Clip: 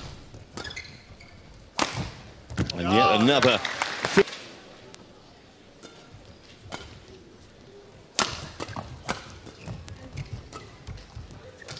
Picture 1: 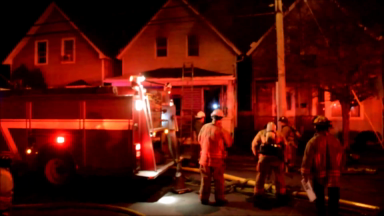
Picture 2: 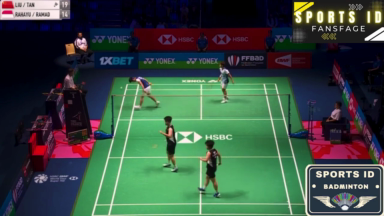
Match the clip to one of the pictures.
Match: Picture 2